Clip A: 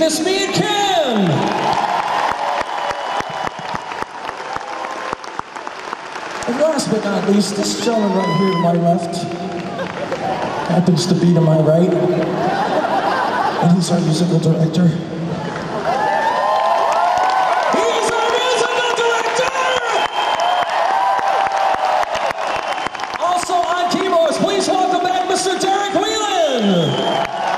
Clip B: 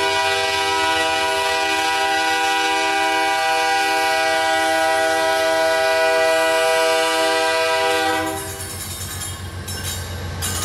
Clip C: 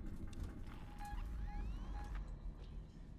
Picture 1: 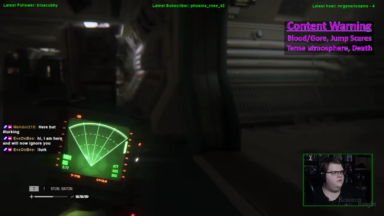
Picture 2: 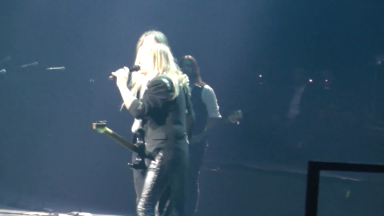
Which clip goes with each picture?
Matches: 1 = C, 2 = A